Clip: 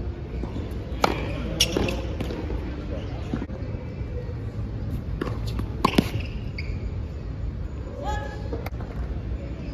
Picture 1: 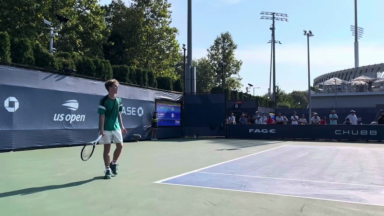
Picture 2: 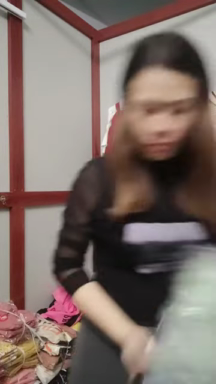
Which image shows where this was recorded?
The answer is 1